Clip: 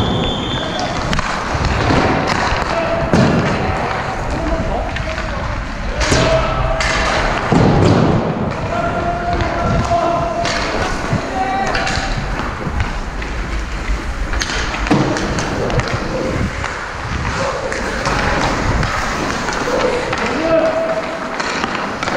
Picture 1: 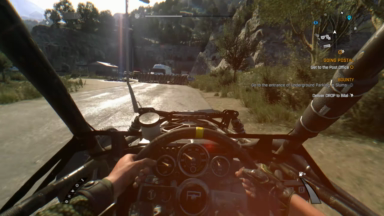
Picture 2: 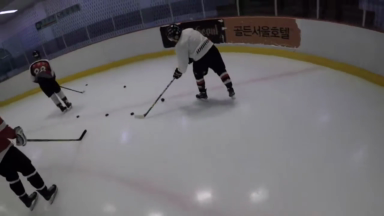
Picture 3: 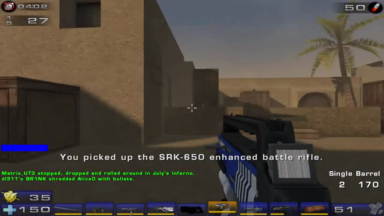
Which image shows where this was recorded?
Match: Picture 2